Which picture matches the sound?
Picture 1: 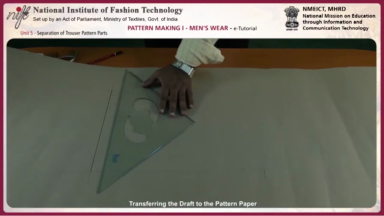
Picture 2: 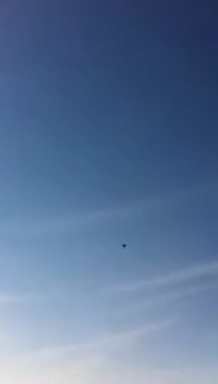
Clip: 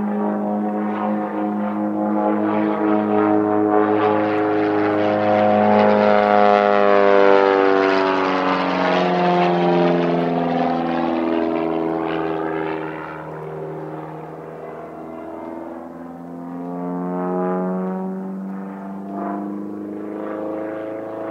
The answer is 2